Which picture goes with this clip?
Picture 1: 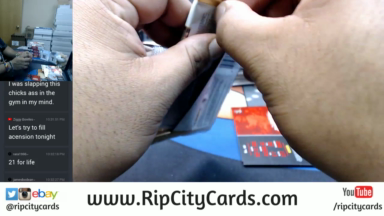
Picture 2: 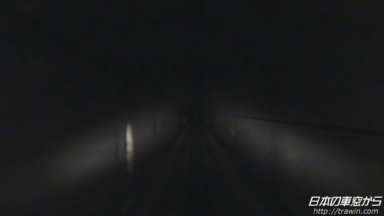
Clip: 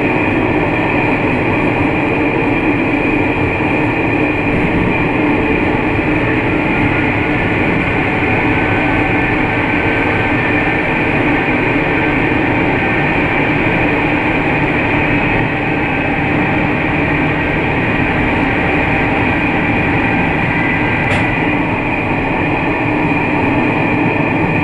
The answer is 2